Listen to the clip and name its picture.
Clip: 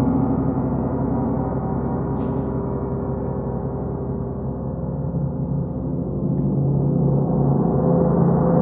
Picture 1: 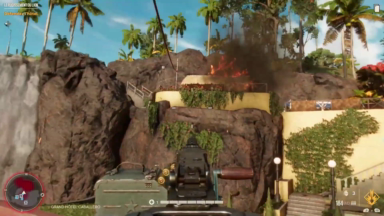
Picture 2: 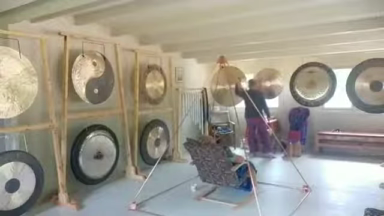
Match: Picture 2